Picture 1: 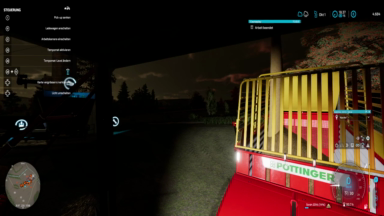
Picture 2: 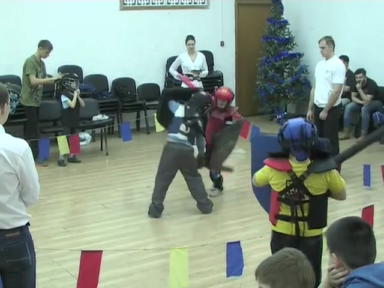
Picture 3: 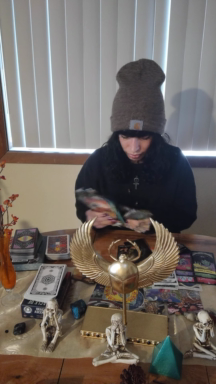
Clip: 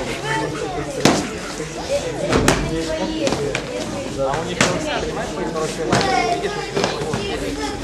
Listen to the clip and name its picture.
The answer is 2